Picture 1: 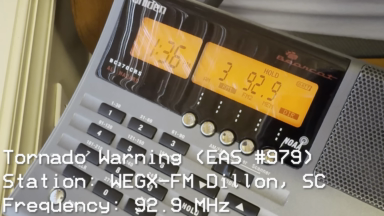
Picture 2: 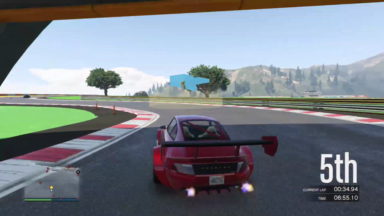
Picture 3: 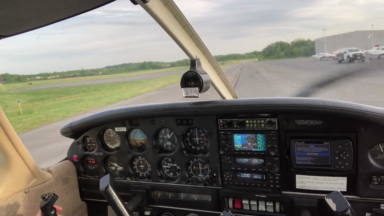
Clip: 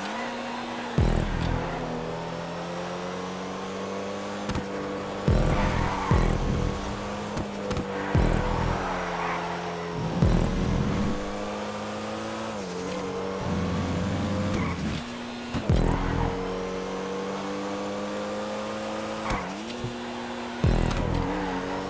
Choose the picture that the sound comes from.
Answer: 2